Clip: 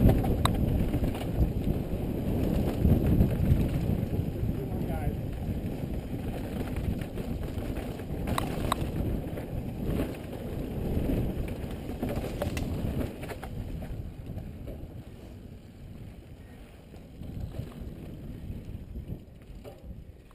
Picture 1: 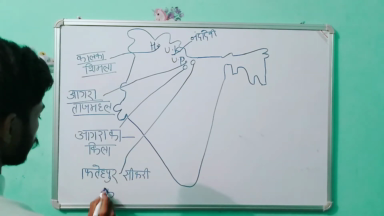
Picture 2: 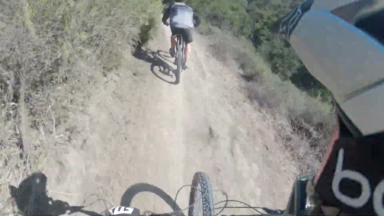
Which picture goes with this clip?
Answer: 2